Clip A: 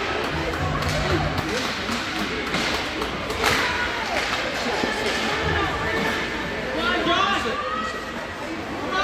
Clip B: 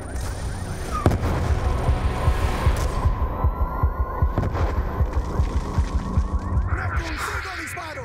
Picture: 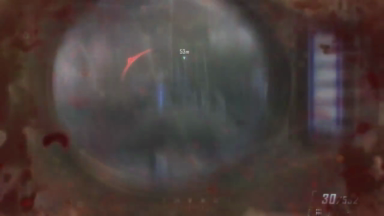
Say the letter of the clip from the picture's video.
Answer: B